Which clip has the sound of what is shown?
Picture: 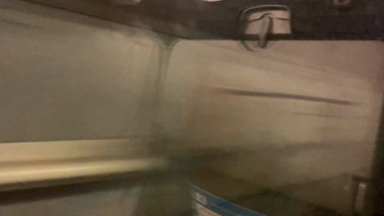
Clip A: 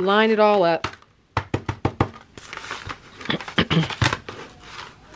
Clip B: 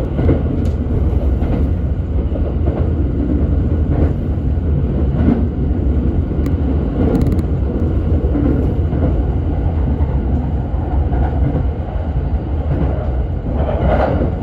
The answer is B